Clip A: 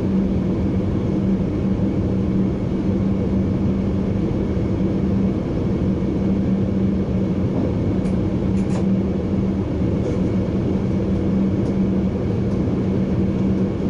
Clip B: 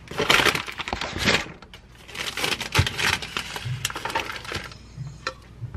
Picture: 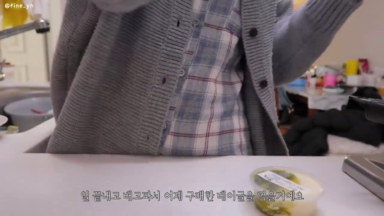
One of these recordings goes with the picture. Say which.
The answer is B